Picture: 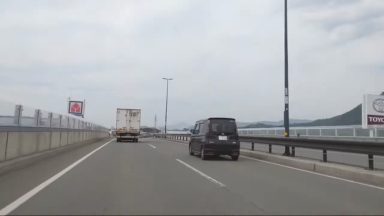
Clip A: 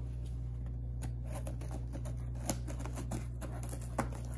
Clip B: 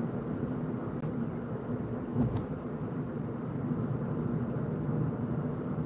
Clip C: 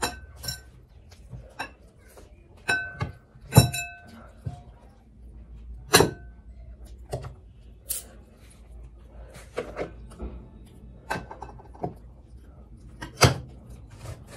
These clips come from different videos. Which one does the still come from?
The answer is B